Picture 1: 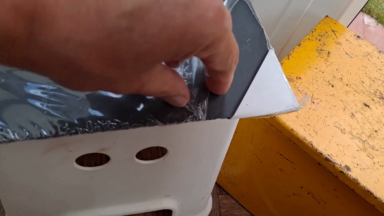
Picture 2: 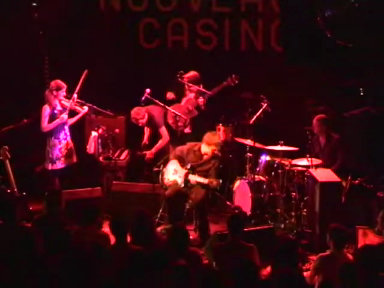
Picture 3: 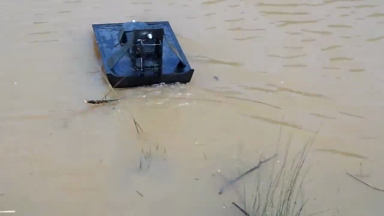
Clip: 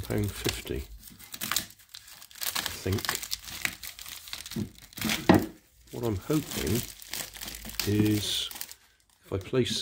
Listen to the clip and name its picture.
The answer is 1